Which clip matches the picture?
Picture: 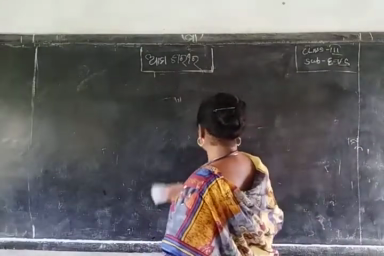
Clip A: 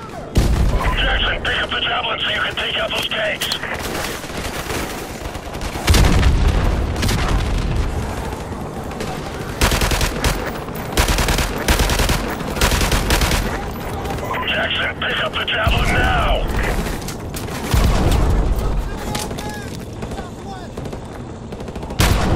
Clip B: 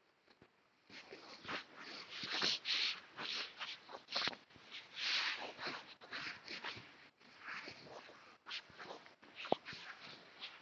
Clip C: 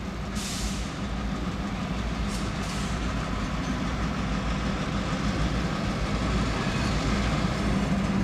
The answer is B